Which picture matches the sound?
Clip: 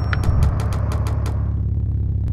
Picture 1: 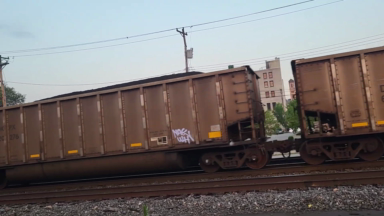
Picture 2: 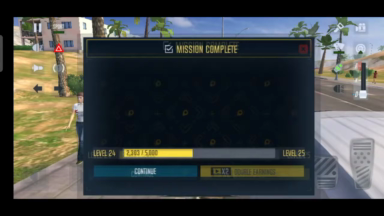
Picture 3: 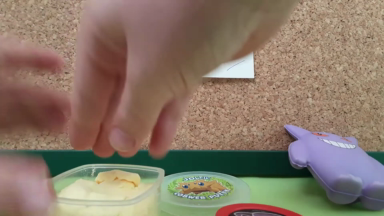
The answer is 2